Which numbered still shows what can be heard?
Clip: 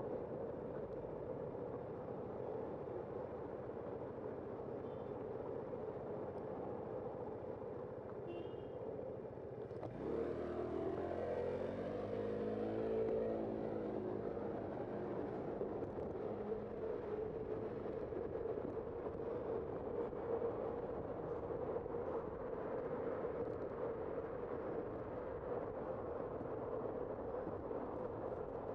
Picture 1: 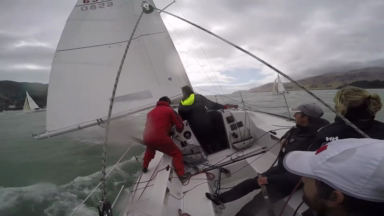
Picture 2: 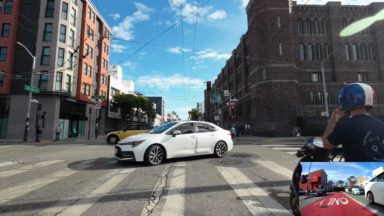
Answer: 2